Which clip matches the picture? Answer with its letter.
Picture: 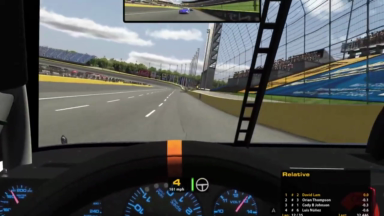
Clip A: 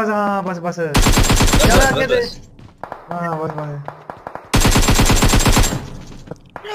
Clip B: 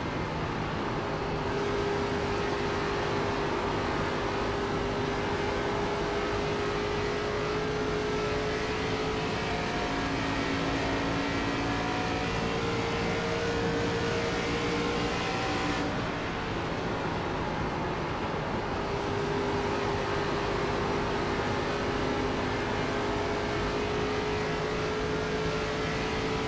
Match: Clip B